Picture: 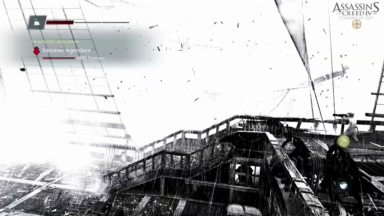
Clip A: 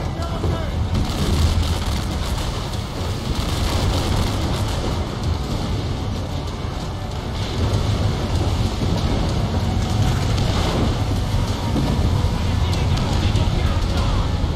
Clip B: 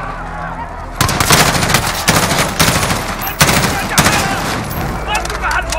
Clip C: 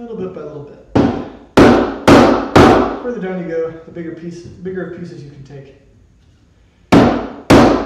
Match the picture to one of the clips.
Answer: A